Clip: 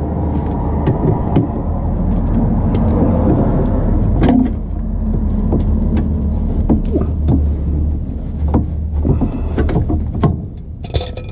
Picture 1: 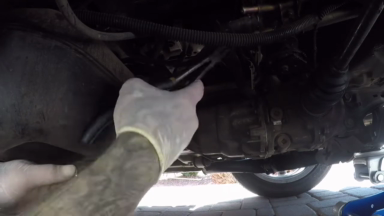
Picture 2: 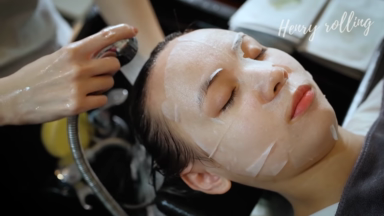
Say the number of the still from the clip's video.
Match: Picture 1